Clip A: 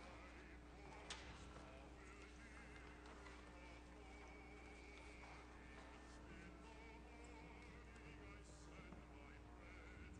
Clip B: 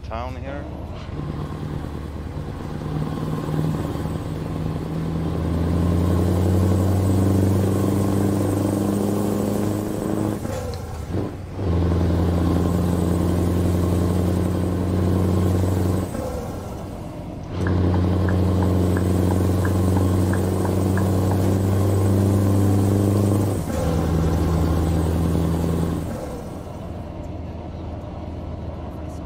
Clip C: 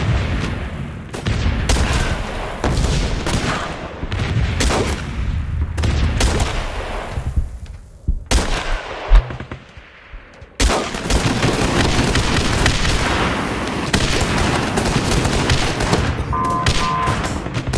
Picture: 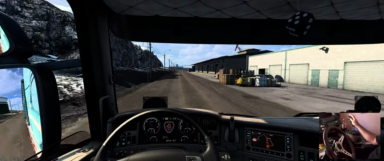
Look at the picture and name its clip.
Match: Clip B